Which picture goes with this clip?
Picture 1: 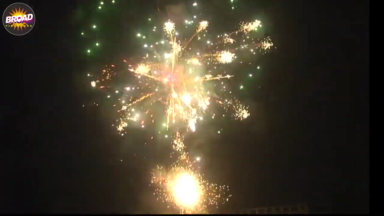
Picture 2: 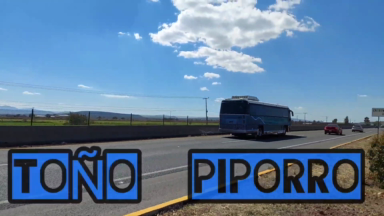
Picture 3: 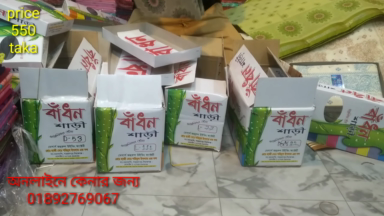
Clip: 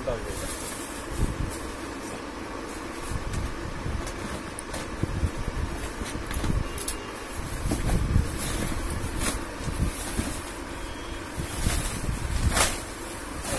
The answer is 3